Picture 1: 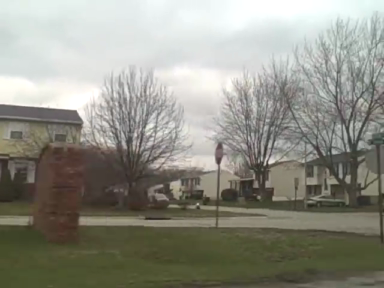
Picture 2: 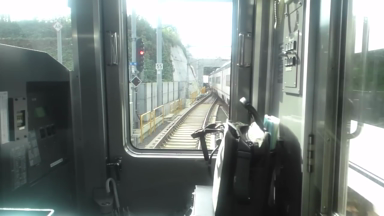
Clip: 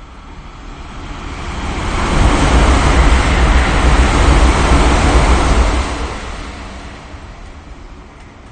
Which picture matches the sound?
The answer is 2